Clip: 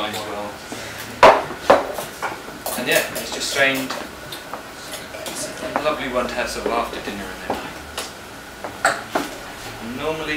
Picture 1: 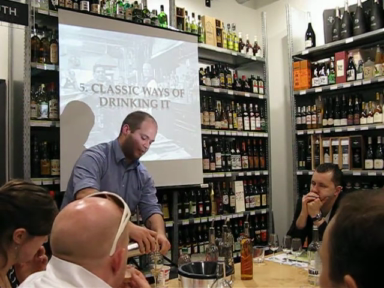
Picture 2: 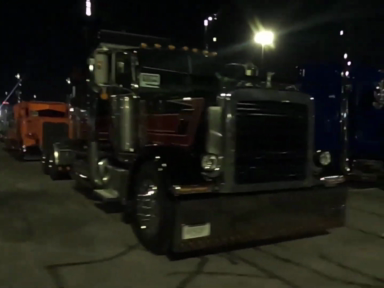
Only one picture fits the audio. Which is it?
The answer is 1